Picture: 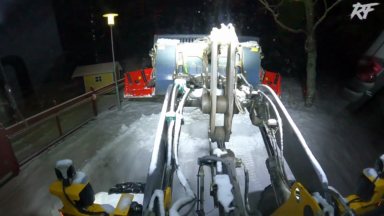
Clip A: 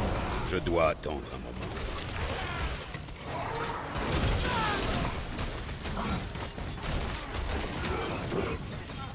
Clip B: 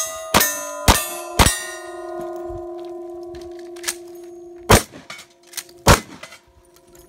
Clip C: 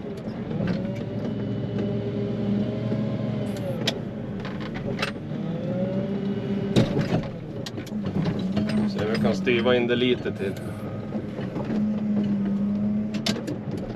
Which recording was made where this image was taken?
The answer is C